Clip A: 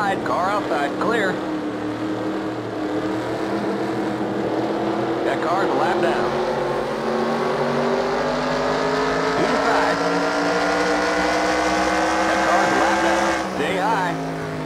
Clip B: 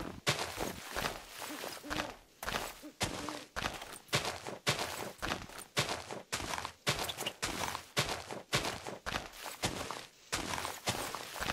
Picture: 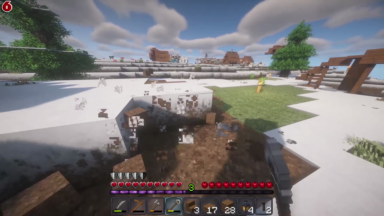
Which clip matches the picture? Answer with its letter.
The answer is B